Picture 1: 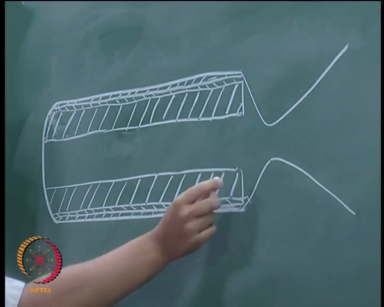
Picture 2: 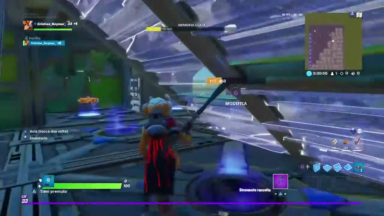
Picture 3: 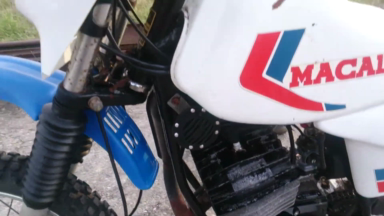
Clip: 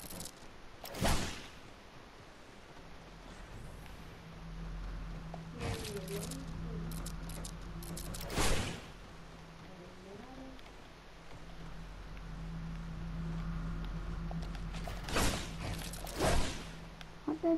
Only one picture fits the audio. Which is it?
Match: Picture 2